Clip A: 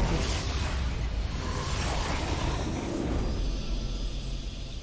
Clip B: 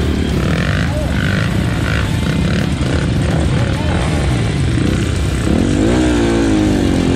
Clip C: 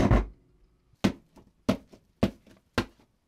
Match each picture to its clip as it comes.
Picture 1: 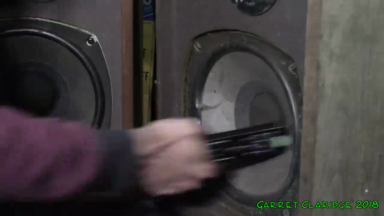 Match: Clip C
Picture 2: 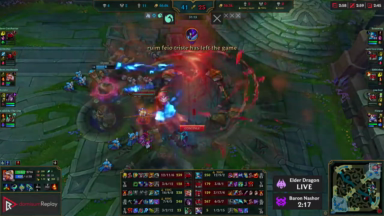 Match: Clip A